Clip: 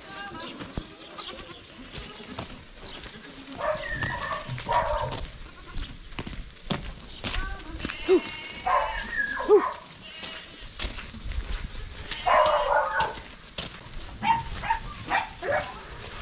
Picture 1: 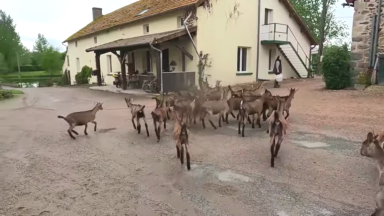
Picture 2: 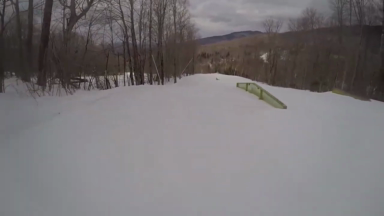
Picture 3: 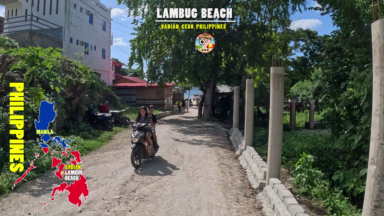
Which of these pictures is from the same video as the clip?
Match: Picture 1